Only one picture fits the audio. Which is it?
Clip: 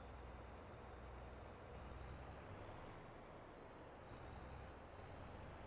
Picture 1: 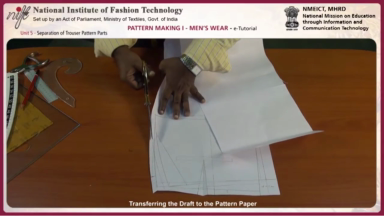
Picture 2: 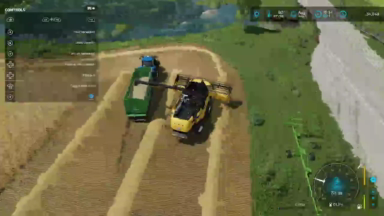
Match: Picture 2